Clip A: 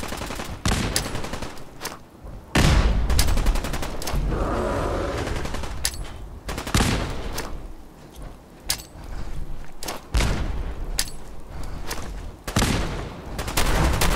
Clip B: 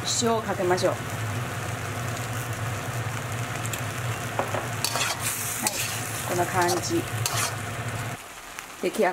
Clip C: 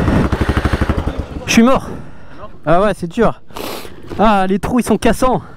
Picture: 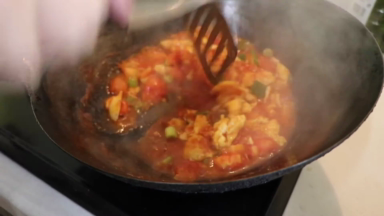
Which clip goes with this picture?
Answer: B